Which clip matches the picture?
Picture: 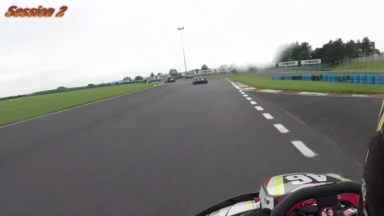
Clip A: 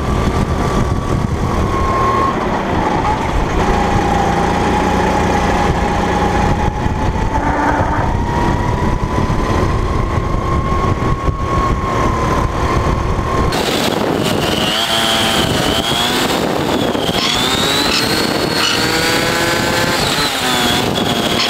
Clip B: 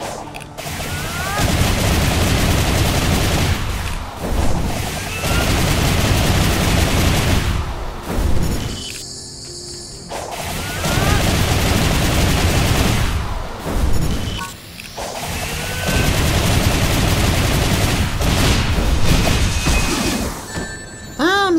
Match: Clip A